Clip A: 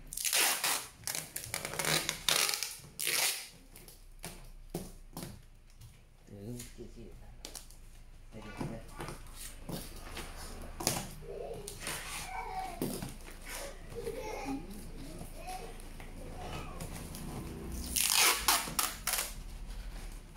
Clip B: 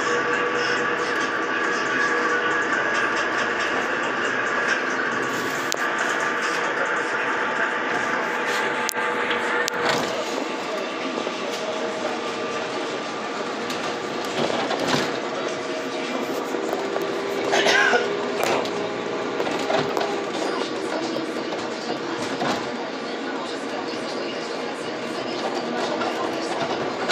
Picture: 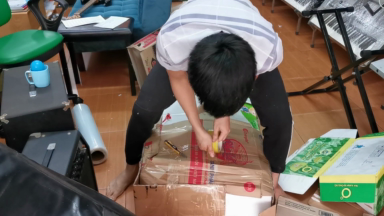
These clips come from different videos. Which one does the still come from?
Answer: A